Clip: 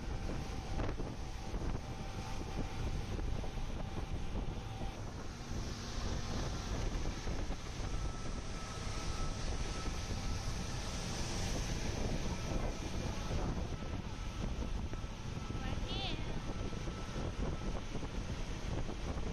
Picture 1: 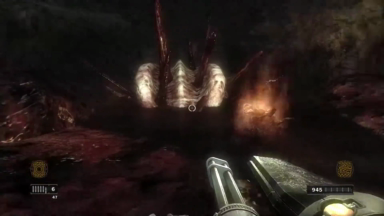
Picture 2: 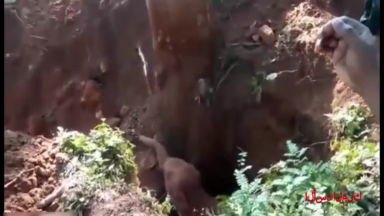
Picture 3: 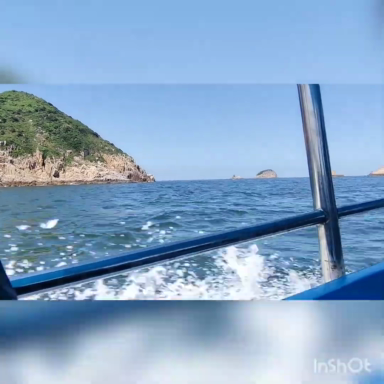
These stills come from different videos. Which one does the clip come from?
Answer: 3